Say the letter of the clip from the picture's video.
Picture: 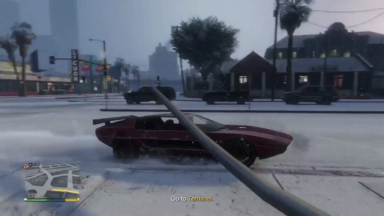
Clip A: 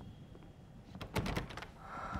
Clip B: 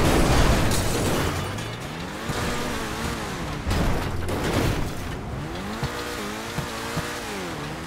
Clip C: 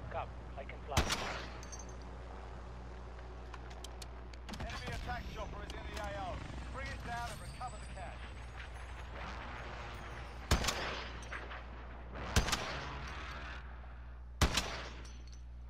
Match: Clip B